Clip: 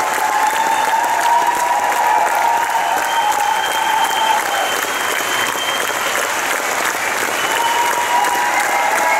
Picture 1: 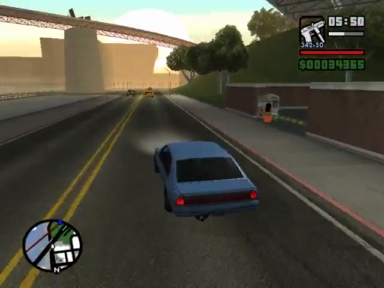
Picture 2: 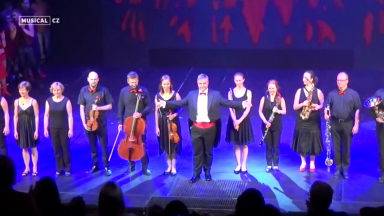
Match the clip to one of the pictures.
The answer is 2